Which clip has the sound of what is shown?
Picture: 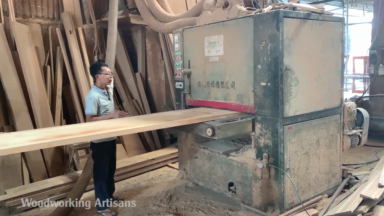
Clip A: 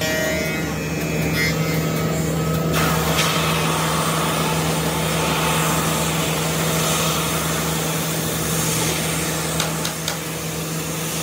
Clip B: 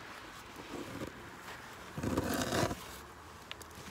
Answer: A